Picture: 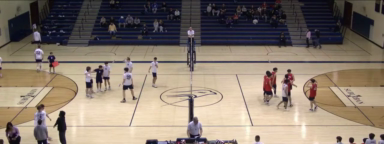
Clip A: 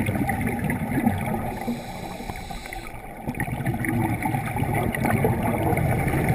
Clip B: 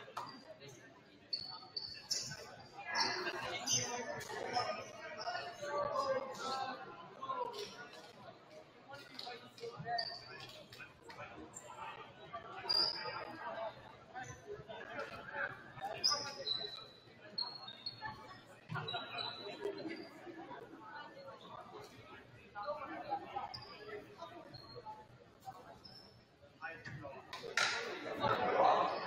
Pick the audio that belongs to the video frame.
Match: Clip B